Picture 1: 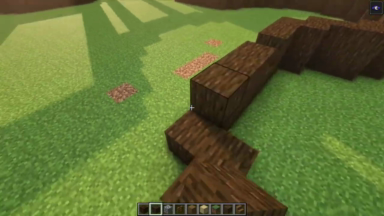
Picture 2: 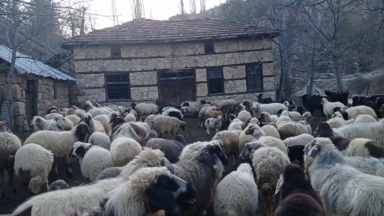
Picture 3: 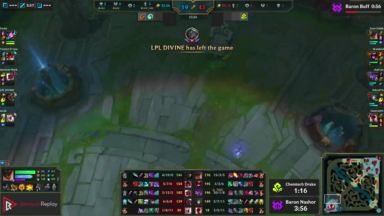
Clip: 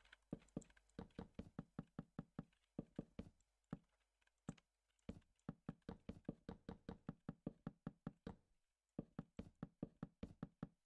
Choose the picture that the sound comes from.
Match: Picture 1